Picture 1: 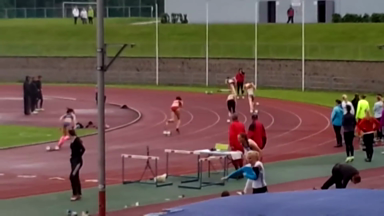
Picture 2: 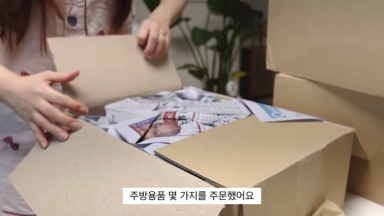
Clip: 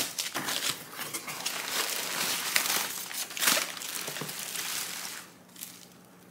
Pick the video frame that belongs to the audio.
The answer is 2